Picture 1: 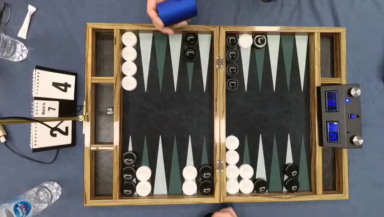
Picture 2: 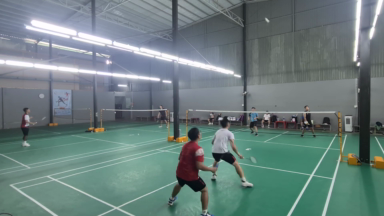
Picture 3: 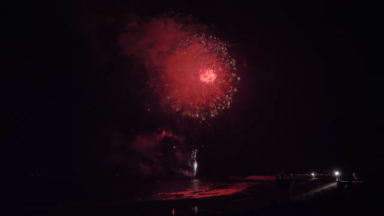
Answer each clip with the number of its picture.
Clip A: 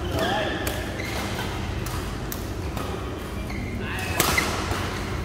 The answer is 2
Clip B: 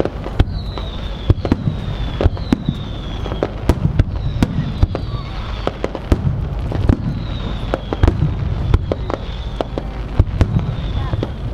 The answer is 3